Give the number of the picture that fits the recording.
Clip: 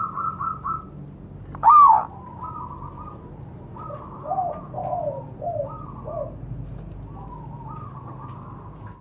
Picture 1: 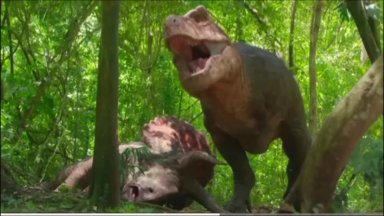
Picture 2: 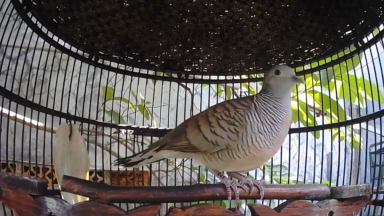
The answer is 2